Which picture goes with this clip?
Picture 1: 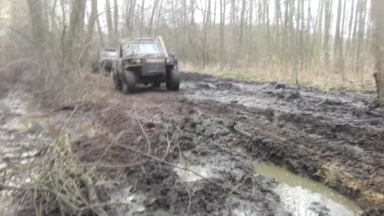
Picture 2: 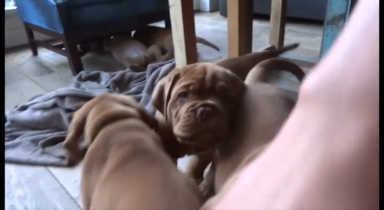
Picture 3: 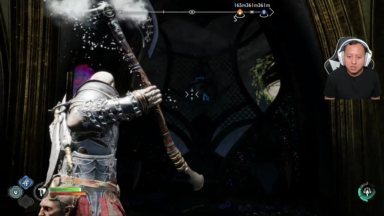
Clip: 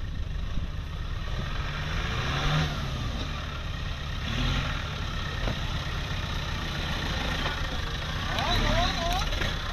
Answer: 1